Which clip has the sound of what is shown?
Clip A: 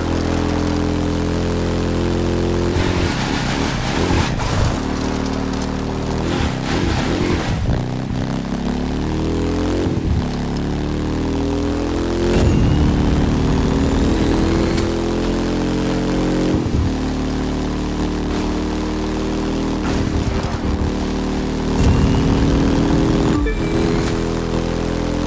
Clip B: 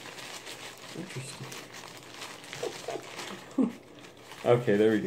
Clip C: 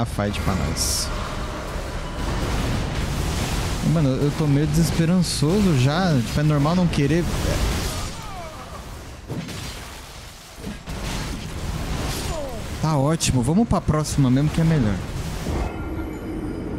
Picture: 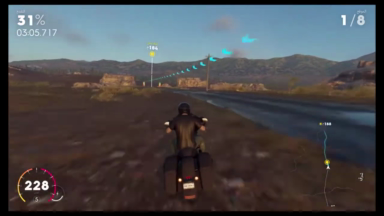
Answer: A